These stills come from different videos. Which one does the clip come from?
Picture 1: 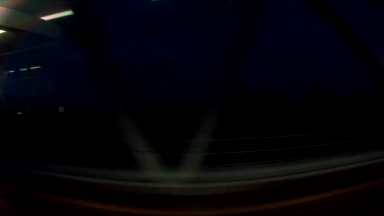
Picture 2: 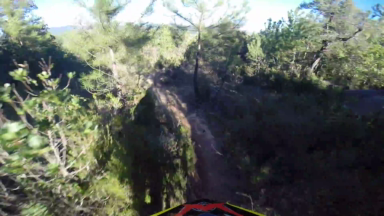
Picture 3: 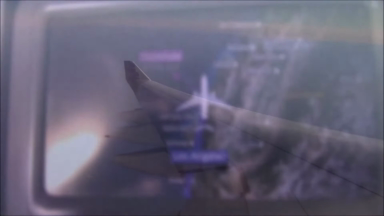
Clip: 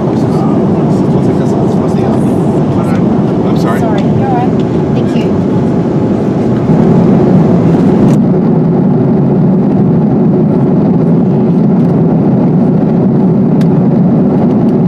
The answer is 3